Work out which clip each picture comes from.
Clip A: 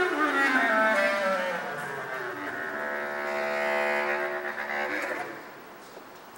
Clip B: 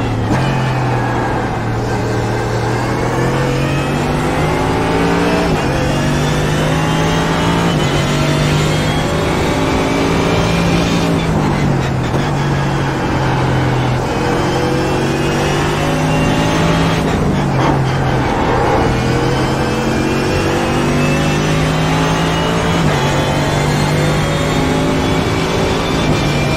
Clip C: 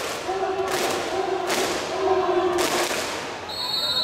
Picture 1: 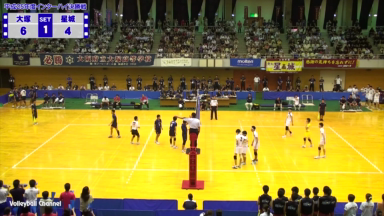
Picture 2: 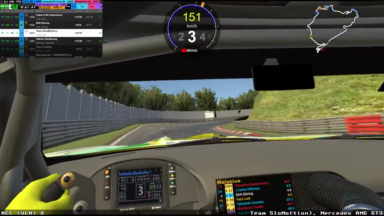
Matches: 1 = C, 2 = B